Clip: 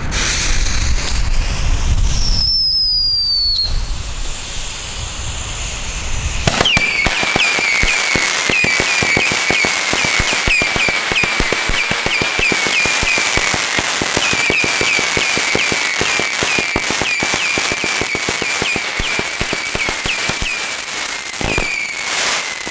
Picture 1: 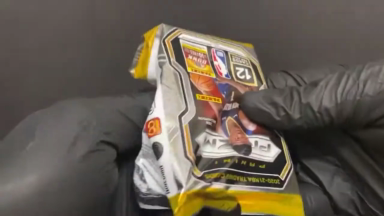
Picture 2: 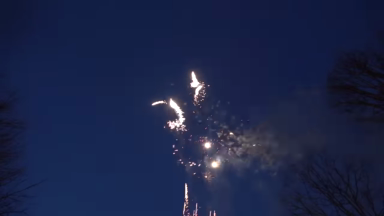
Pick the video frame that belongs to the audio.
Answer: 2